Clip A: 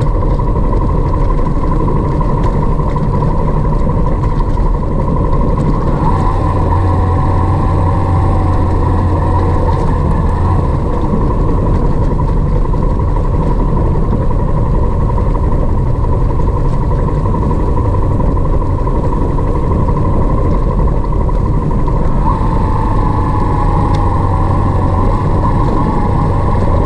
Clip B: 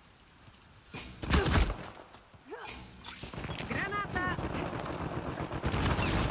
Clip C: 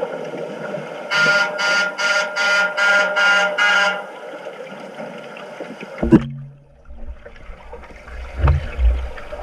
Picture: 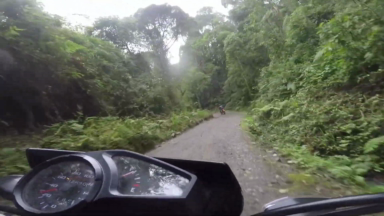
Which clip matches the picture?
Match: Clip A